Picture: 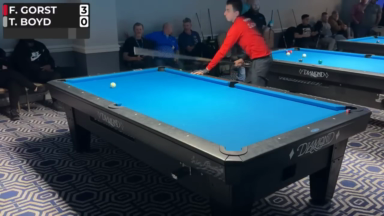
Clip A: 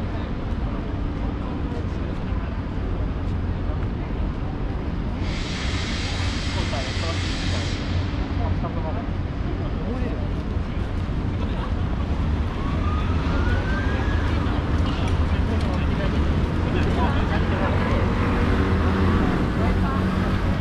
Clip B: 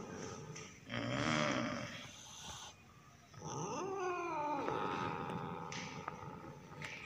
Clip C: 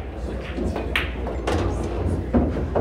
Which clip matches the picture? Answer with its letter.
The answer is C